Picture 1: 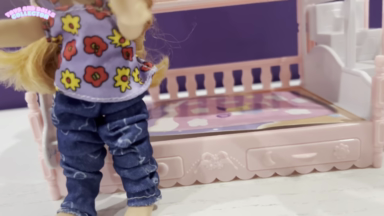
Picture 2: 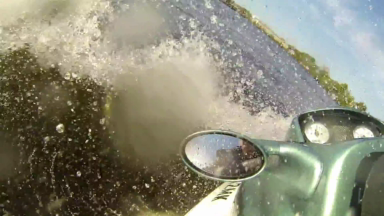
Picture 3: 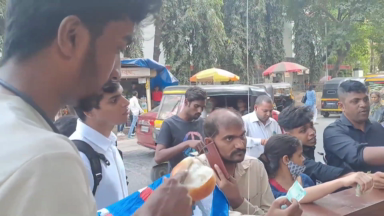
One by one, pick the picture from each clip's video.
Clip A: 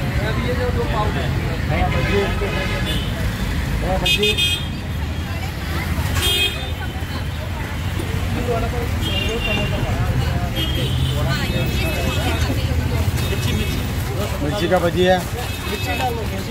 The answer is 3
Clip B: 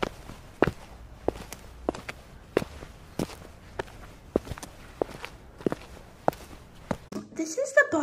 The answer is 1